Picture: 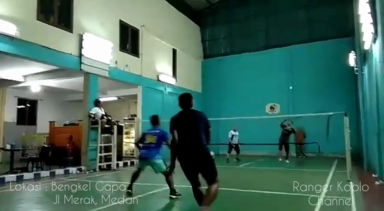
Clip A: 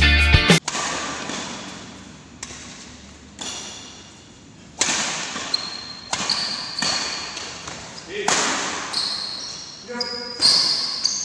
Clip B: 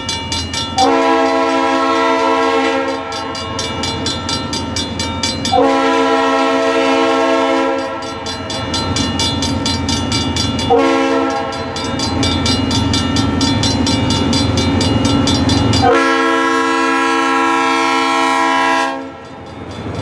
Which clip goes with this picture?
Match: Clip A